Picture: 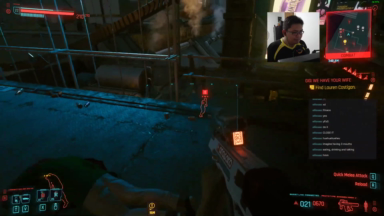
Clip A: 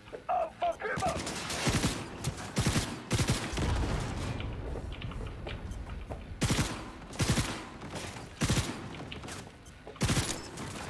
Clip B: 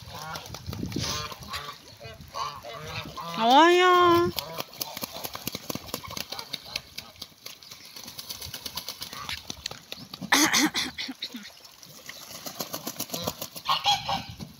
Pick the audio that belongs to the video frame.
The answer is A